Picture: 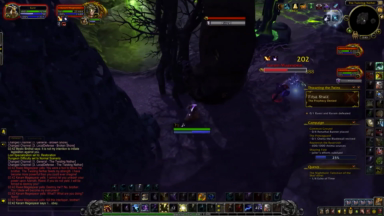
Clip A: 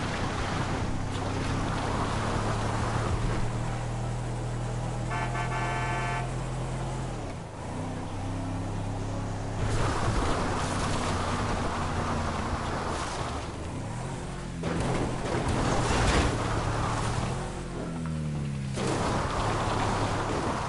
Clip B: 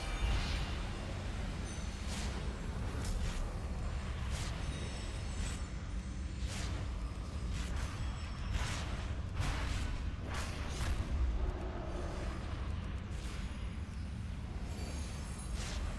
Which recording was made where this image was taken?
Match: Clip B